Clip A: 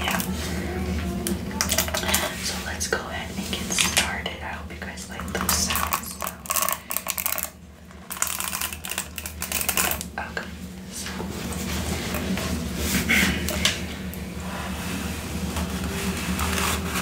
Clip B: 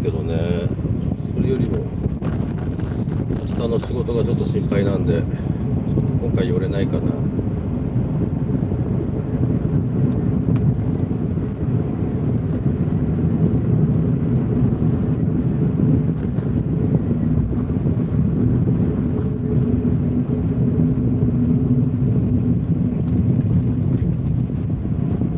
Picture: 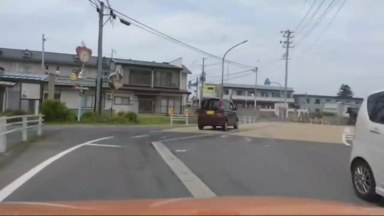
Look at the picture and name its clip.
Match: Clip B